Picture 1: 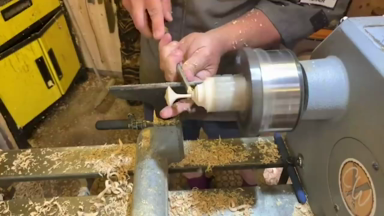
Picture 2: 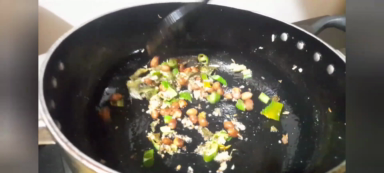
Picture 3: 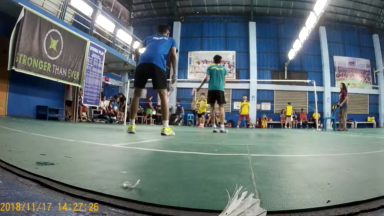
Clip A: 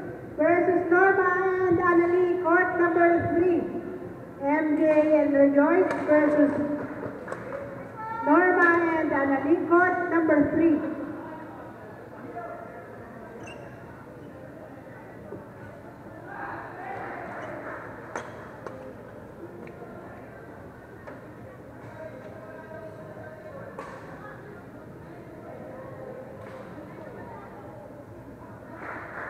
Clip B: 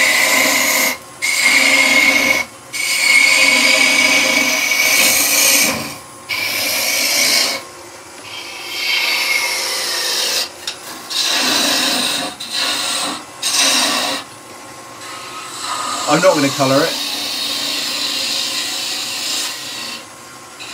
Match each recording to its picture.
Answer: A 3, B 1